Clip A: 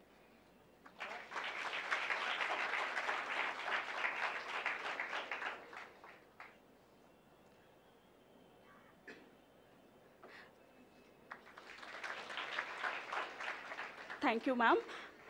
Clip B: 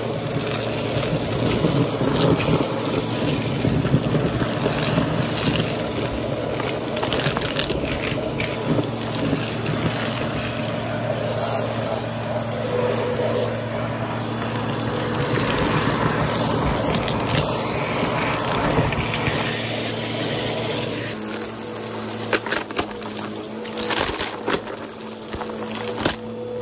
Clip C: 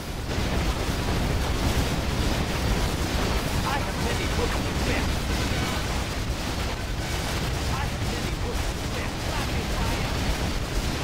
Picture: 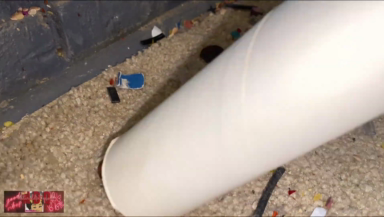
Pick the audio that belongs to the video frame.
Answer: B